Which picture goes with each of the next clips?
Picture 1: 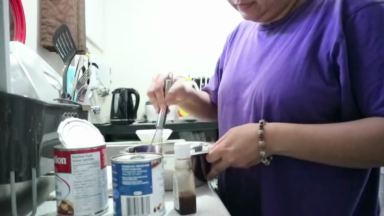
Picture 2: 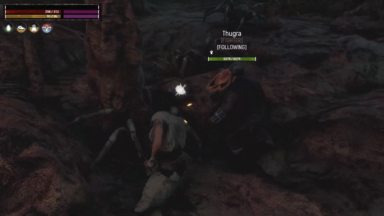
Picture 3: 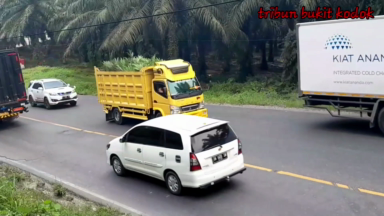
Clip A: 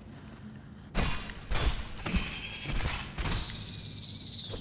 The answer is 2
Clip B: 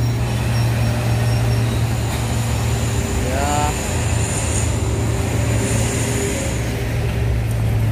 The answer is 3